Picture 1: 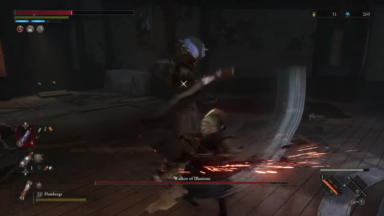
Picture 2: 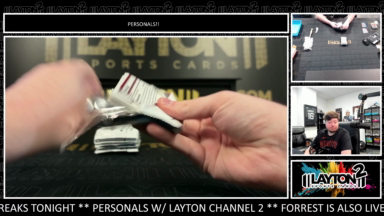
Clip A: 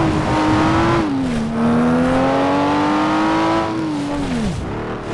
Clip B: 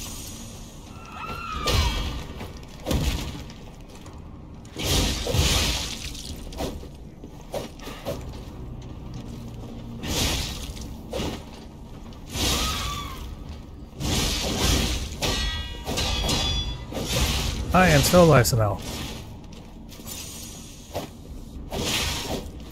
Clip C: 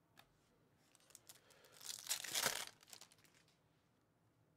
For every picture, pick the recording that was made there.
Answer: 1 B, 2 C